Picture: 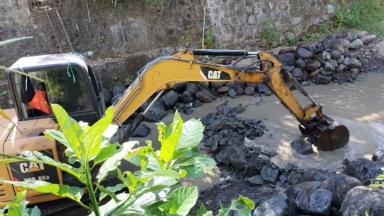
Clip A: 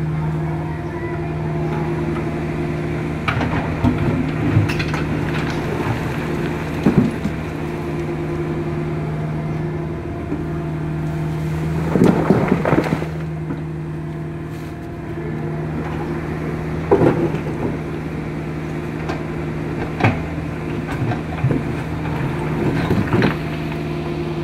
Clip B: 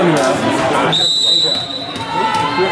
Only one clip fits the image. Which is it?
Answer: A